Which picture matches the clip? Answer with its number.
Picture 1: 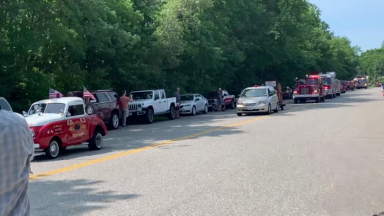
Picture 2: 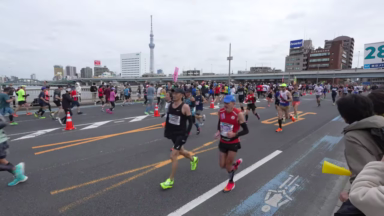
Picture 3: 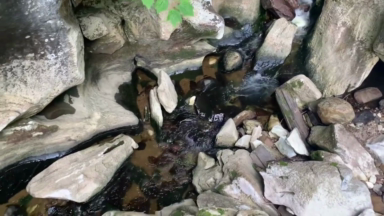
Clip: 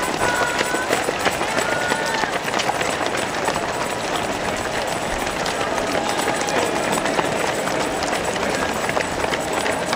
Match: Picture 2